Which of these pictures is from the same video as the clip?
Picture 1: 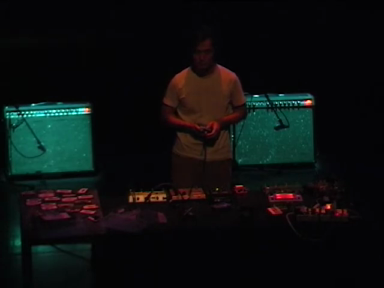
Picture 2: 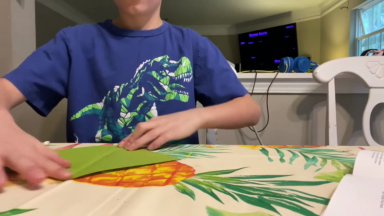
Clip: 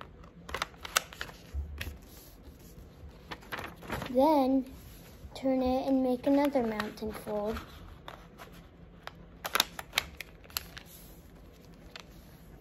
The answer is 2